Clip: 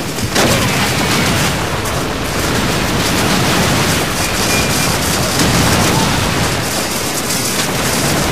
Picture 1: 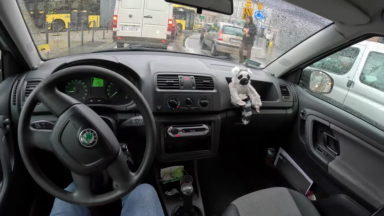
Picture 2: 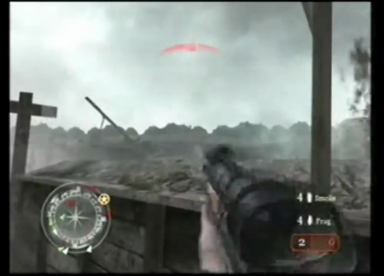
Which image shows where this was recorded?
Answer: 2